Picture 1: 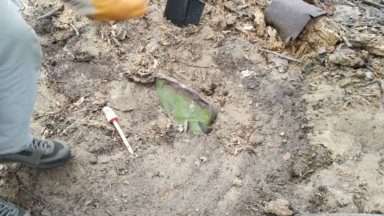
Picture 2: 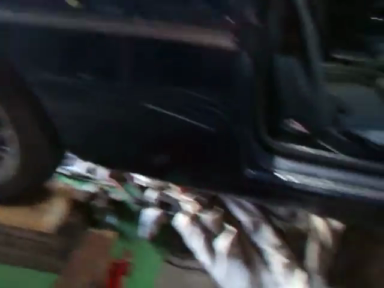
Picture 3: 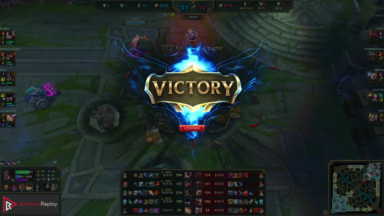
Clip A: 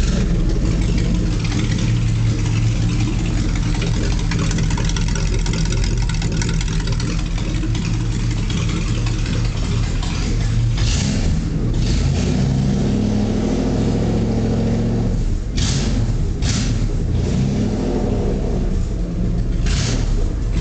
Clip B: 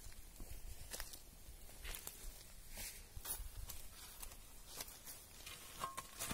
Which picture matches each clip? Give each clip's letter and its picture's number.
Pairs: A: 2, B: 1